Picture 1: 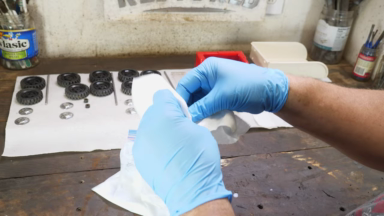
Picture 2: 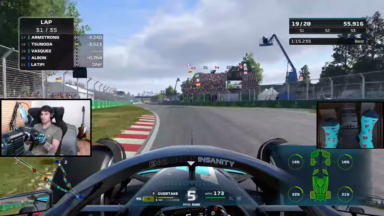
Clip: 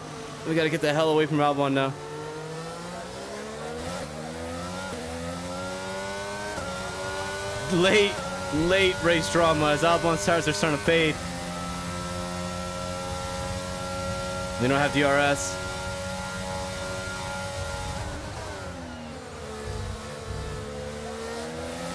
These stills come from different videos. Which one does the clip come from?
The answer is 2